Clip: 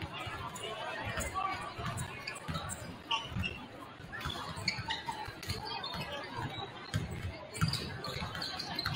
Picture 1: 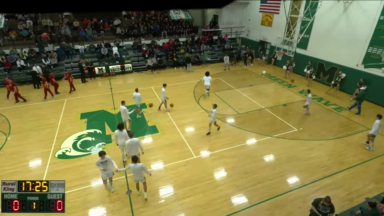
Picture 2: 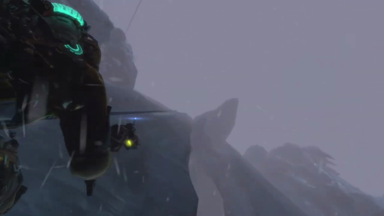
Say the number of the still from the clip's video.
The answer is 1